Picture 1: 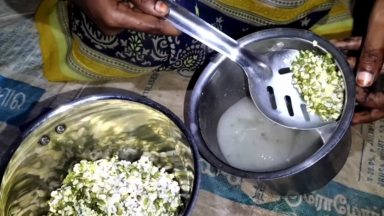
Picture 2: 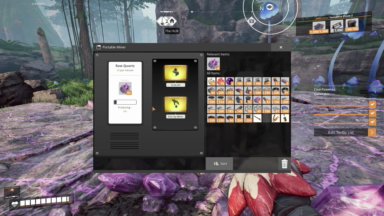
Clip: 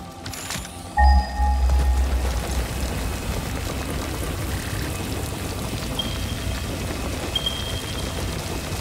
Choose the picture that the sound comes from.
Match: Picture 2